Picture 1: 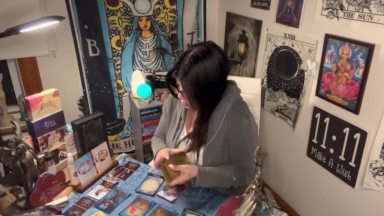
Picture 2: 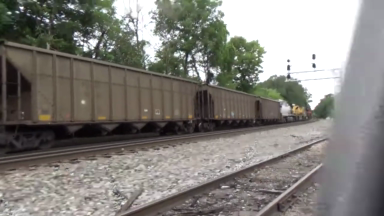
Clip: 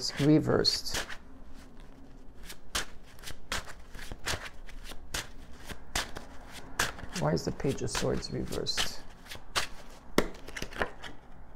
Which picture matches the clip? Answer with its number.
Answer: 1